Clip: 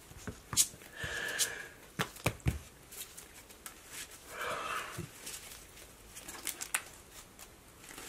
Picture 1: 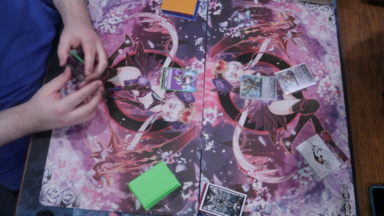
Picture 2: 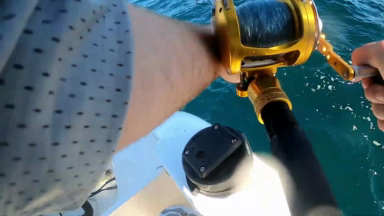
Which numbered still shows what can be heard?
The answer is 1